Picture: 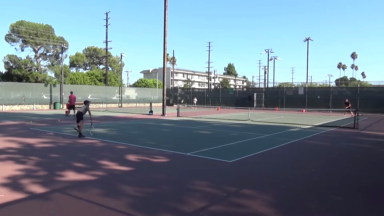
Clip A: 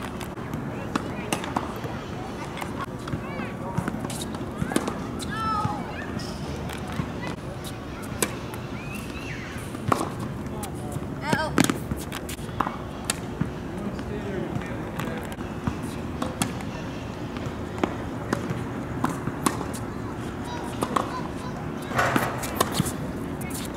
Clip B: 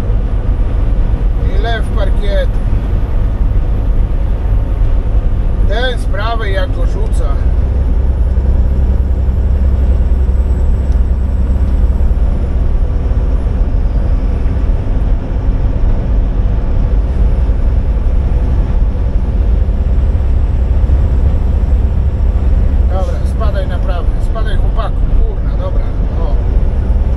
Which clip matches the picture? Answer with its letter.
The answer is A